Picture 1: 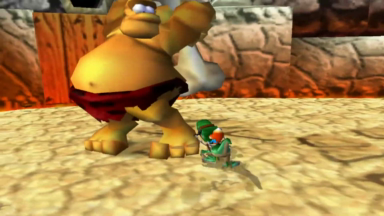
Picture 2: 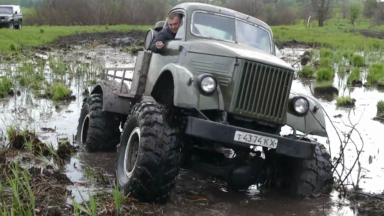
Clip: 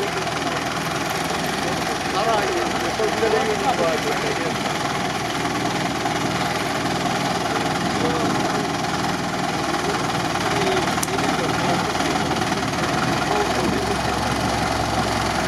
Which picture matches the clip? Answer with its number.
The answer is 2